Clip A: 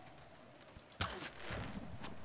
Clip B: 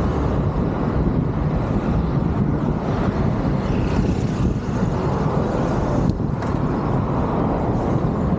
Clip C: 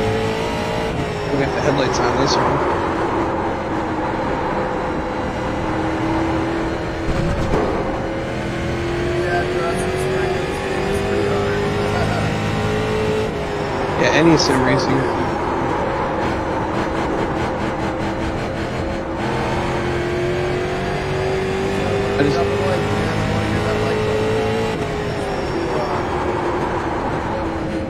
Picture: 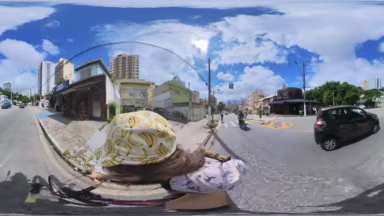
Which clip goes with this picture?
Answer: B